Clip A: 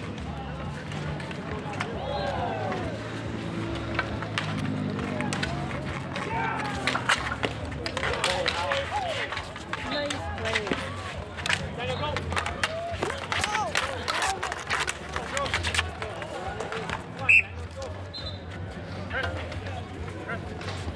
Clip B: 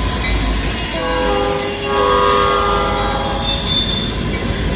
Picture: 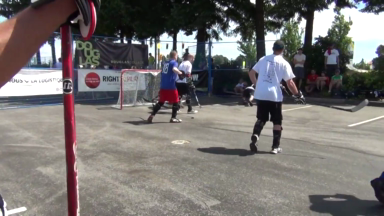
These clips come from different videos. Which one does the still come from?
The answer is A